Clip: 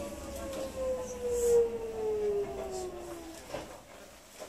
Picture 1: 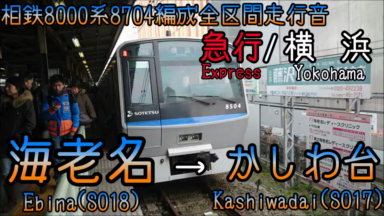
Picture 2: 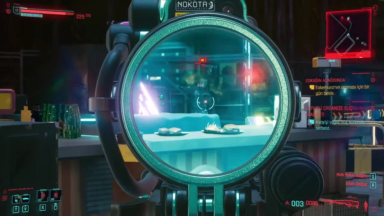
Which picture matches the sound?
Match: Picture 1